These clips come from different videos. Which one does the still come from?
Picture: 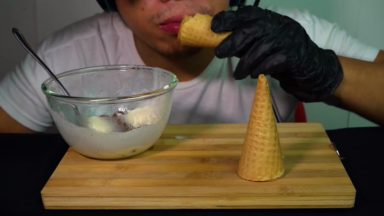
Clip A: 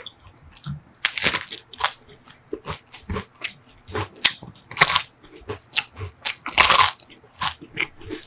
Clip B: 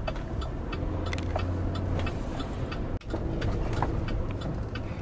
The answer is A